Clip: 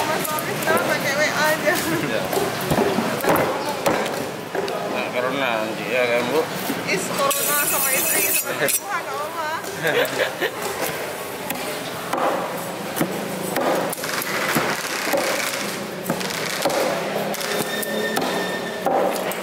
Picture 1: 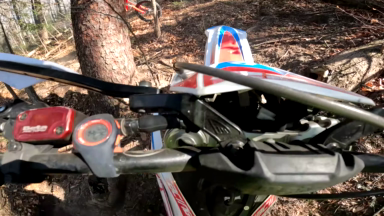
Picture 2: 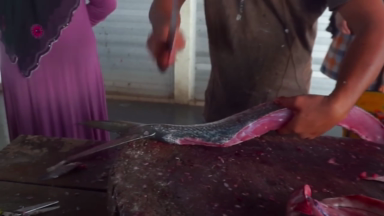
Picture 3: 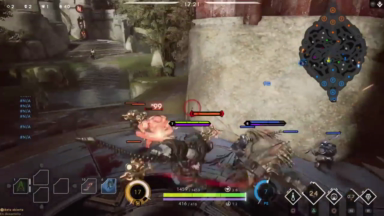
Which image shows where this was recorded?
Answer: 2